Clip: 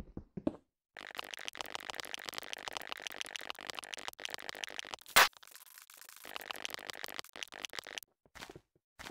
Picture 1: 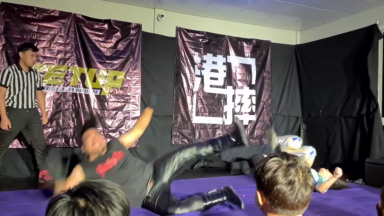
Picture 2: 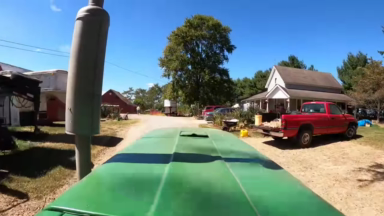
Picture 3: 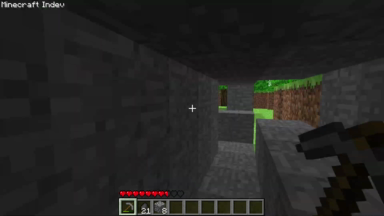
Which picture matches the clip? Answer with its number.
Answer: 3